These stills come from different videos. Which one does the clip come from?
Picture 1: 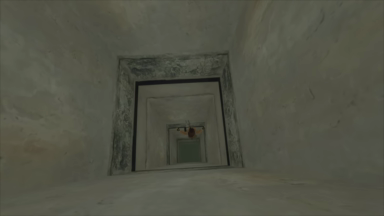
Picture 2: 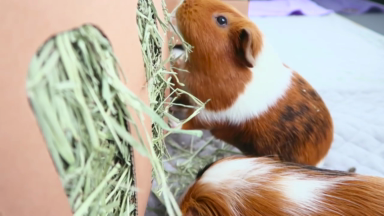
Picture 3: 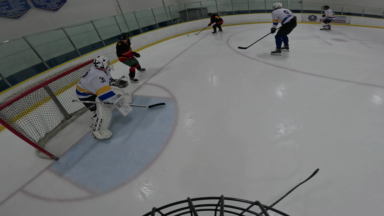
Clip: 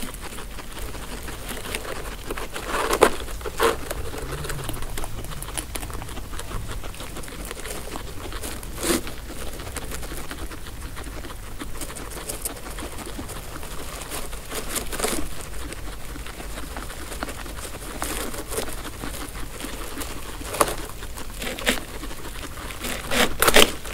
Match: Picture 2